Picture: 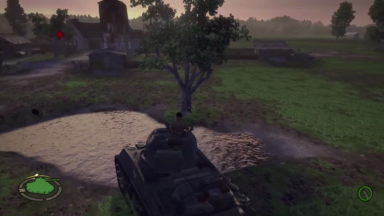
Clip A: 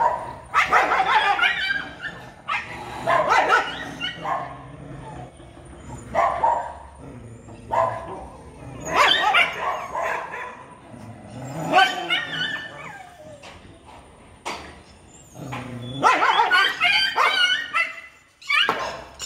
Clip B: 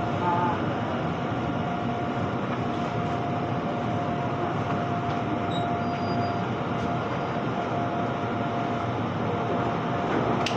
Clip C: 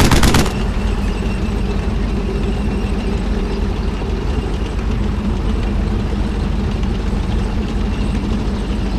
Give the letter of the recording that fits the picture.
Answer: C